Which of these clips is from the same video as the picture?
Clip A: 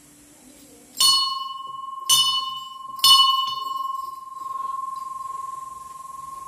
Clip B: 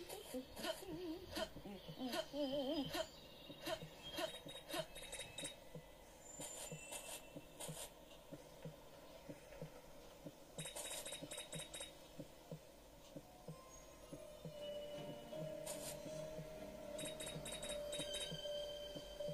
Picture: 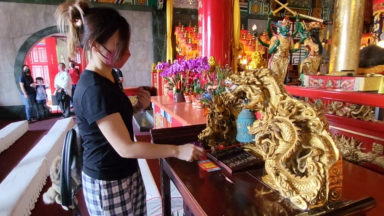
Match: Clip A